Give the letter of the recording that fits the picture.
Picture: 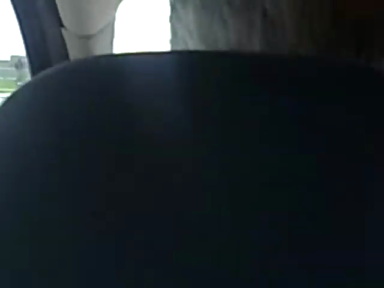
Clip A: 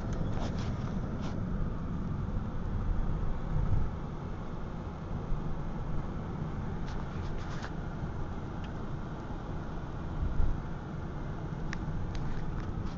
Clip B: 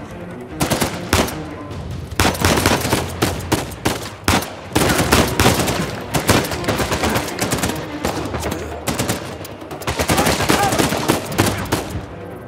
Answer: A